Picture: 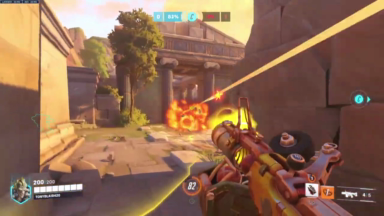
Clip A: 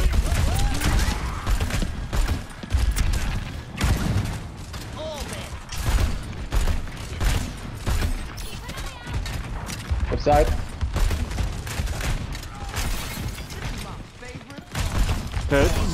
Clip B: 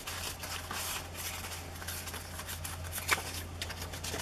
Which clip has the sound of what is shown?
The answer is A